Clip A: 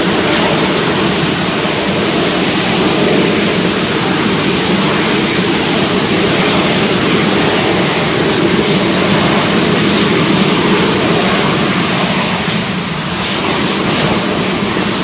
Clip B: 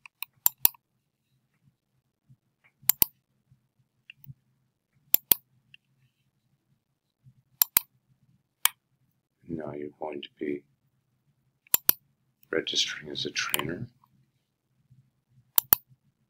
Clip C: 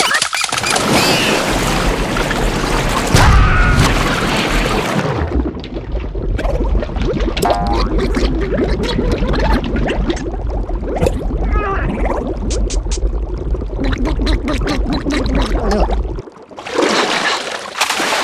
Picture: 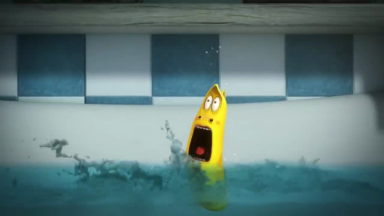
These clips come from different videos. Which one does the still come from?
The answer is C